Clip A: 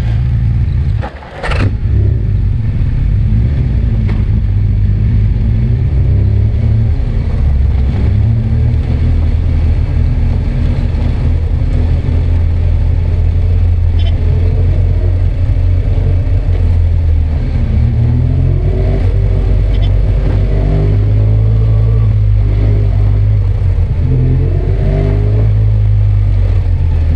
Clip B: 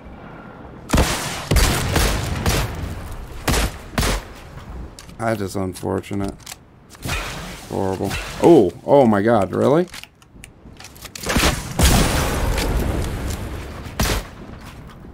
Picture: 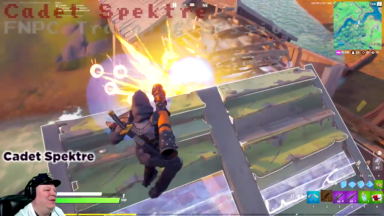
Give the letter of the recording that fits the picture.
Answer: B